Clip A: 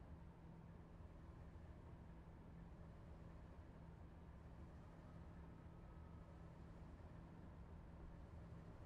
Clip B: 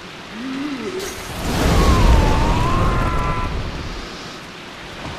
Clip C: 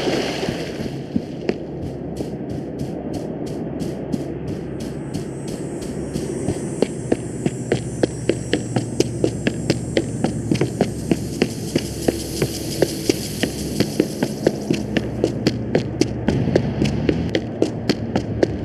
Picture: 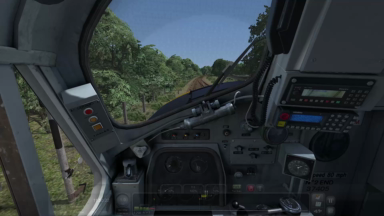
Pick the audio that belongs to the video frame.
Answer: A